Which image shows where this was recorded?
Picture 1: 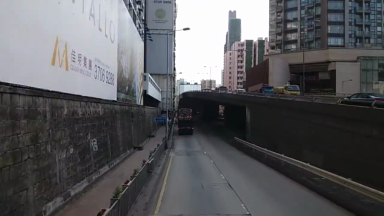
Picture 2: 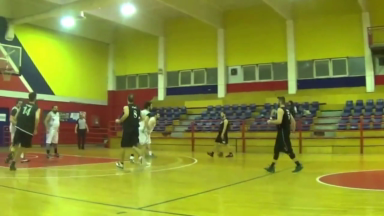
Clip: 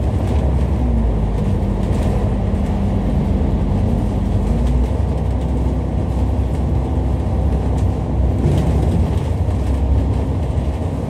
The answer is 1